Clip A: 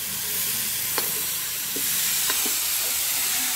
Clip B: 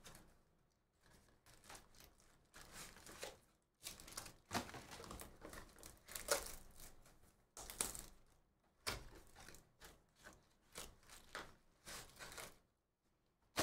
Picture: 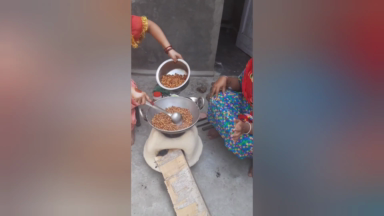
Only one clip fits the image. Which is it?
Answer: A